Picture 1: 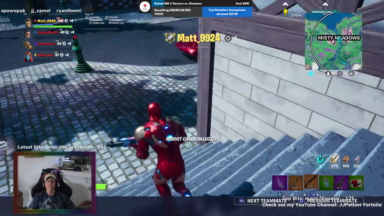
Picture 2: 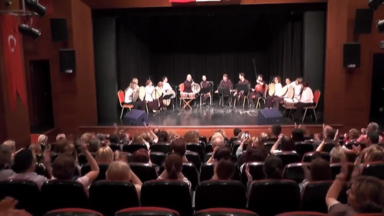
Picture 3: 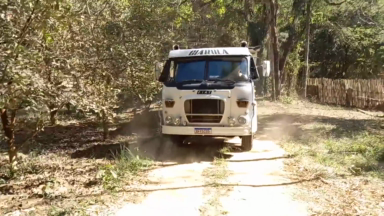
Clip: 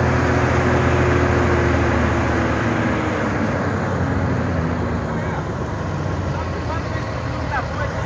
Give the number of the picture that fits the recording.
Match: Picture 3